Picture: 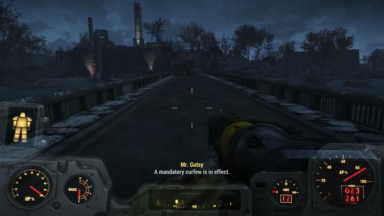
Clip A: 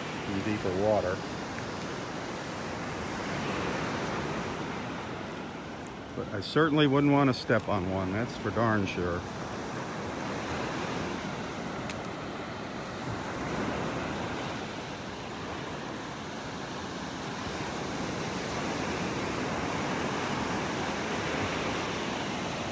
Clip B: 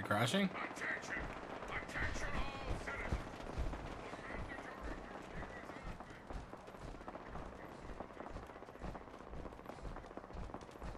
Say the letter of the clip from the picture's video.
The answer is B